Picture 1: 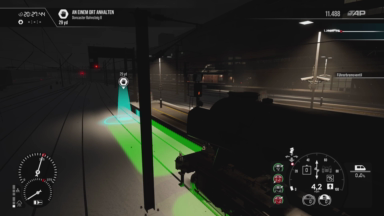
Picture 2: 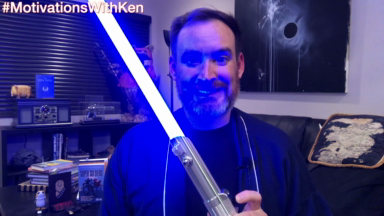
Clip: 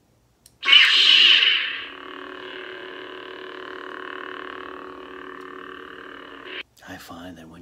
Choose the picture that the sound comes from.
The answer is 2